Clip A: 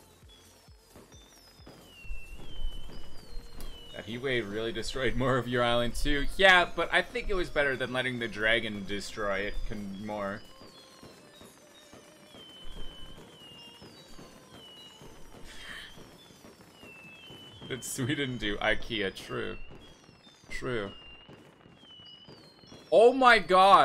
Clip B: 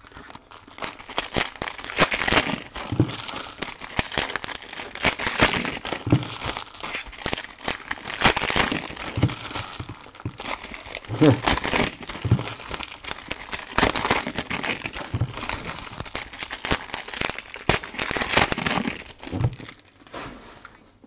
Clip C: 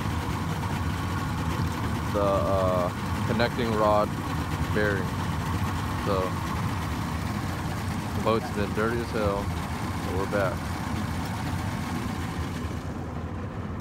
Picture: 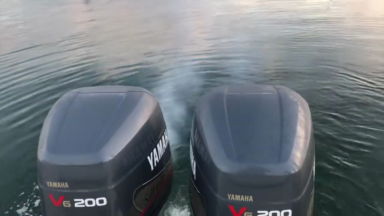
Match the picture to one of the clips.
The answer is C